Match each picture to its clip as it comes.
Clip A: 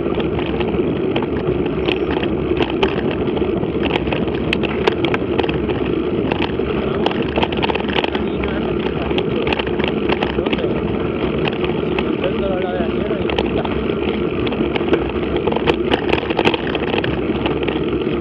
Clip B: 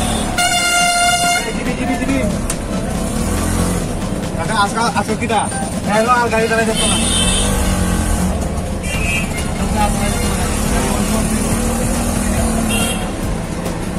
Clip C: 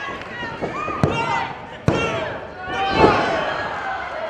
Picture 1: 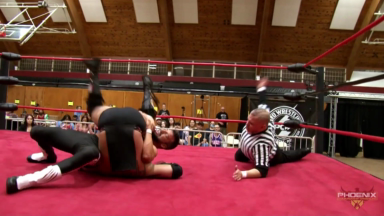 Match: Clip C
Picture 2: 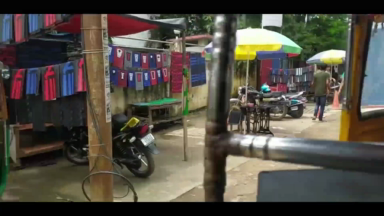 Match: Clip B